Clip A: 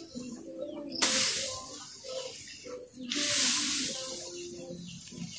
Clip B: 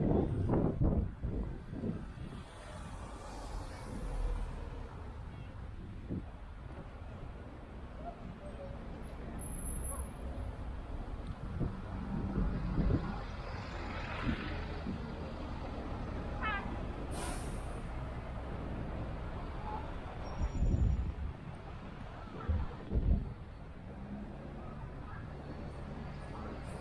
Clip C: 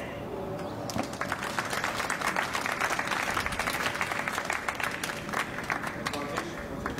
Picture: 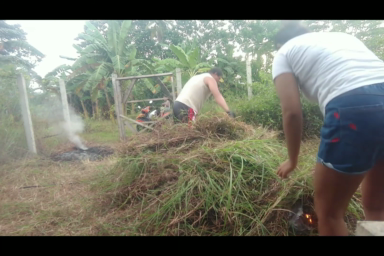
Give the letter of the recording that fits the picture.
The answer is A